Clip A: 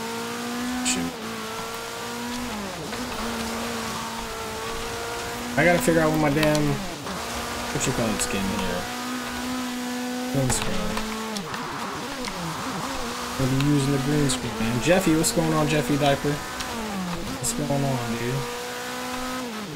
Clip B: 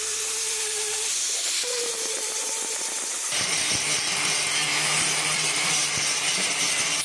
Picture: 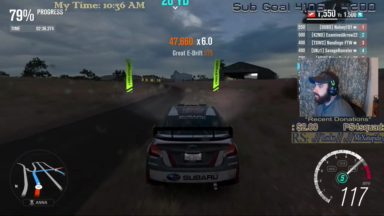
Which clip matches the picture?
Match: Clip A